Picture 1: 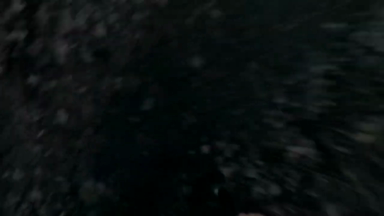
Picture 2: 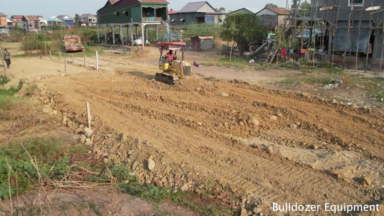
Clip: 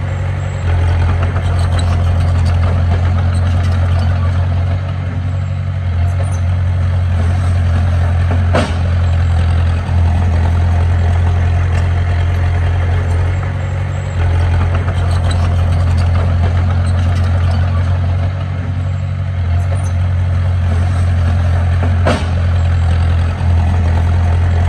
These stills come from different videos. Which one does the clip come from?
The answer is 2